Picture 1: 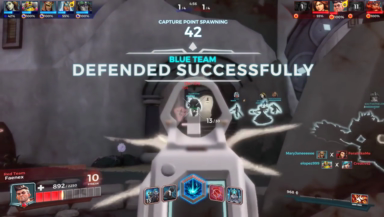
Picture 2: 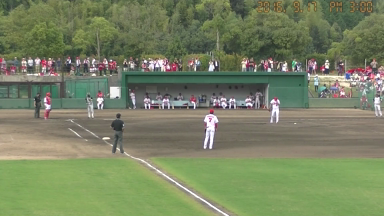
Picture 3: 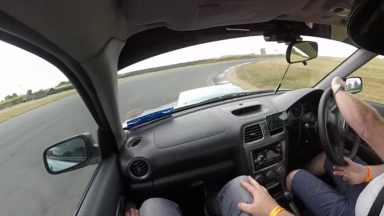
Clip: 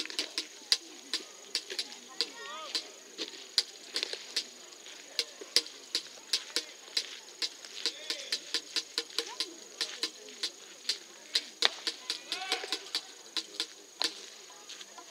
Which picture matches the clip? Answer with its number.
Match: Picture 2